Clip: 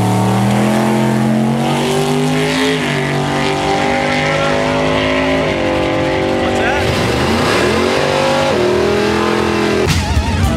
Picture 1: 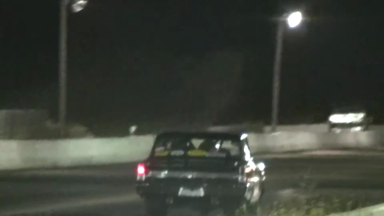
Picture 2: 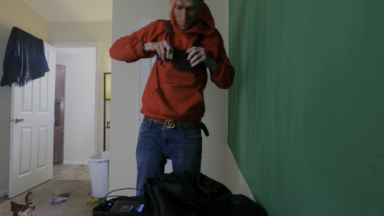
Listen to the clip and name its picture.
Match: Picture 1